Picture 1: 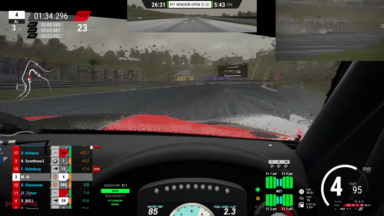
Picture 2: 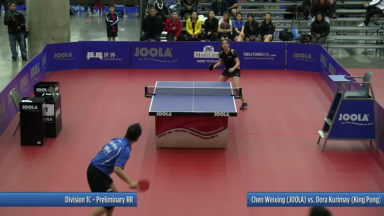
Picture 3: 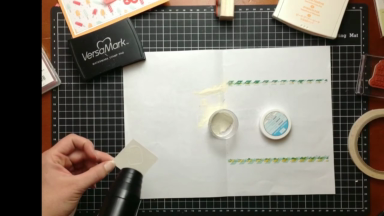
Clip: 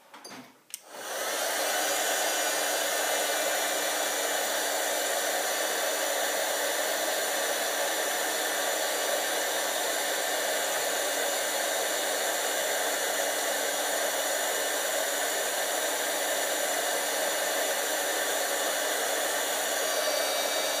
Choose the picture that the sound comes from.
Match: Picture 3